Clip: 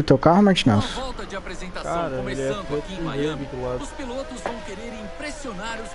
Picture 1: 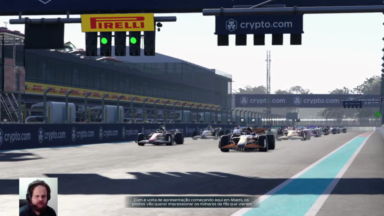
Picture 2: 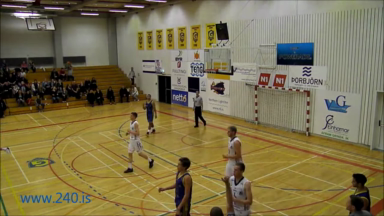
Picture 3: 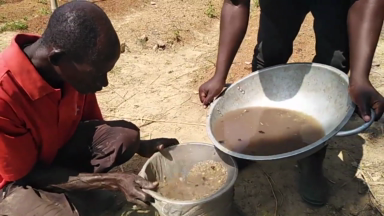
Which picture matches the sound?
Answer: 1